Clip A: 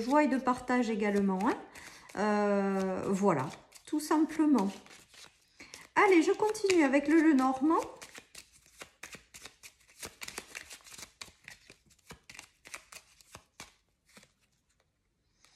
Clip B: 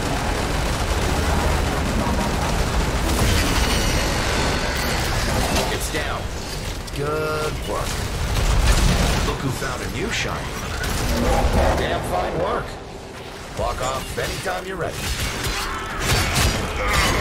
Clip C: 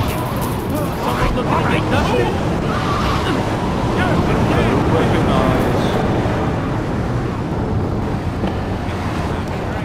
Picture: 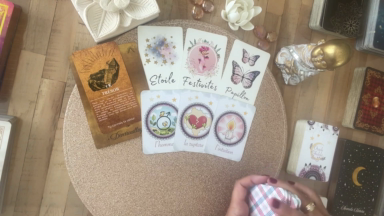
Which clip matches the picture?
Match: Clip A